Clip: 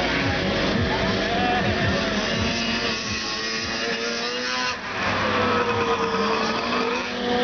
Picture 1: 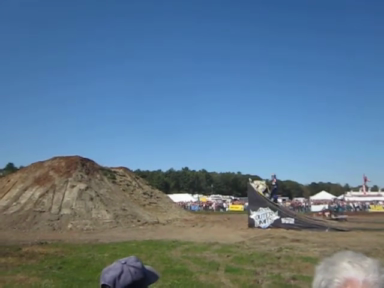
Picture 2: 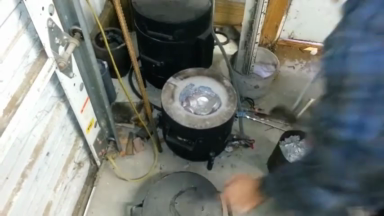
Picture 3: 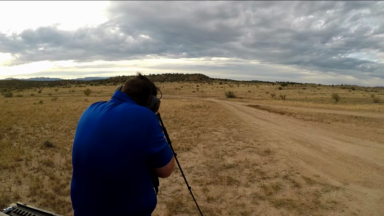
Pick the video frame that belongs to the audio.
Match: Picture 1